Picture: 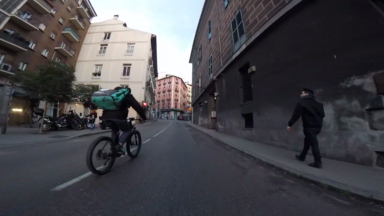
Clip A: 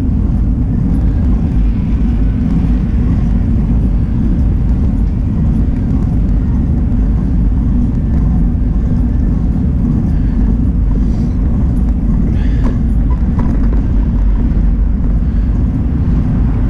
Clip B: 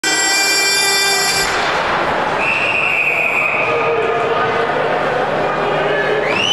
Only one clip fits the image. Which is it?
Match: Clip A